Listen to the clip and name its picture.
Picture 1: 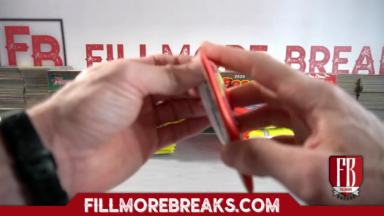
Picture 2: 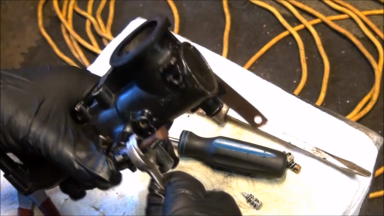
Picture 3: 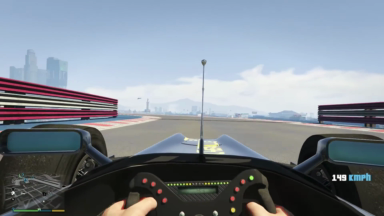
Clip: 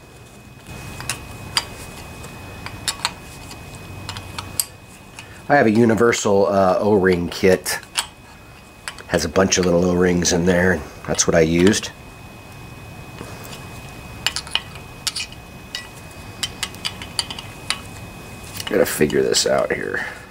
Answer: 2